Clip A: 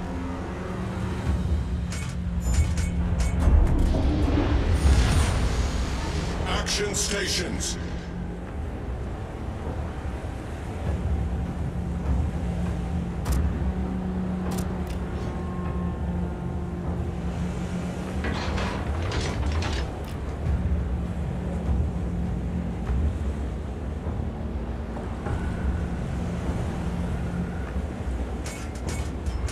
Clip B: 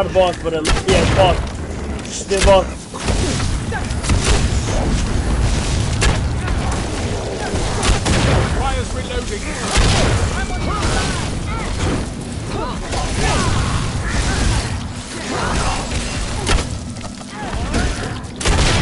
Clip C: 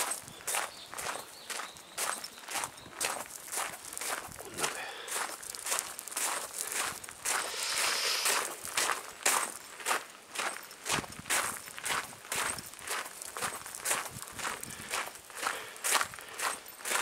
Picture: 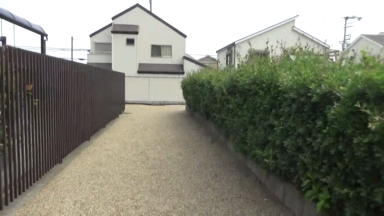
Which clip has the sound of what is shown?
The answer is C